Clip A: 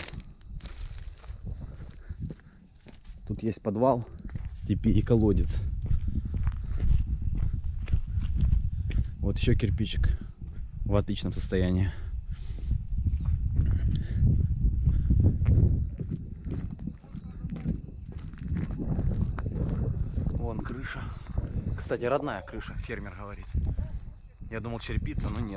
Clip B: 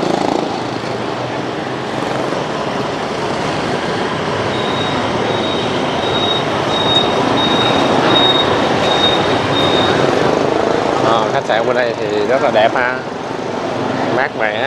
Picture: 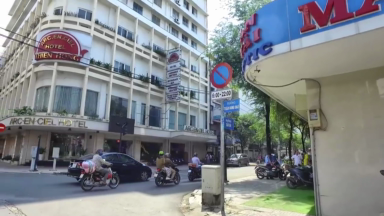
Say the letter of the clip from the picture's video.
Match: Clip B